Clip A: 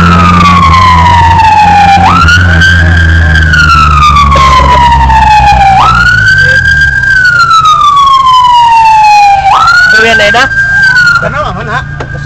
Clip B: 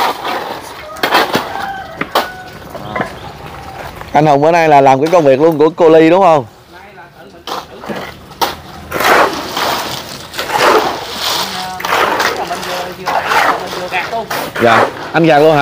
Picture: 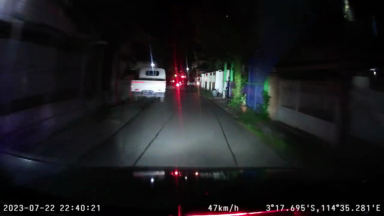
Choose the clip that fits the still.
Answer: A